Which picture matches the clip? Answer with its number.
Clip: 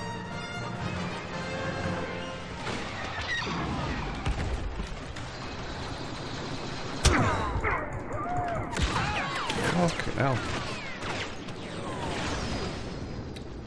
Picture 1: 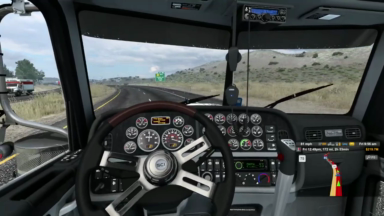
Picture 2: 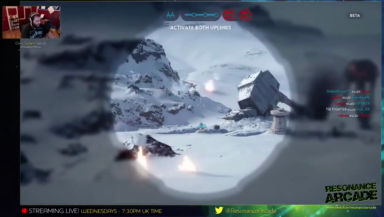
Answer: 2